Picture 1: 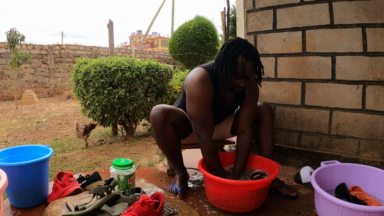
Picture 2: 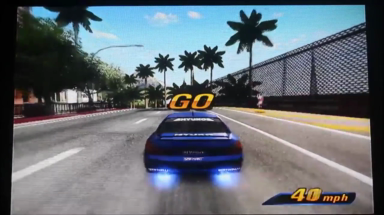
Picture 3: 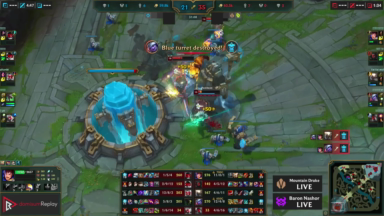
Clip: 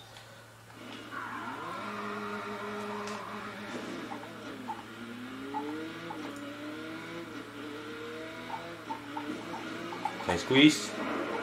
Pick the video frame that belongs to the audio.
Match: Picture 2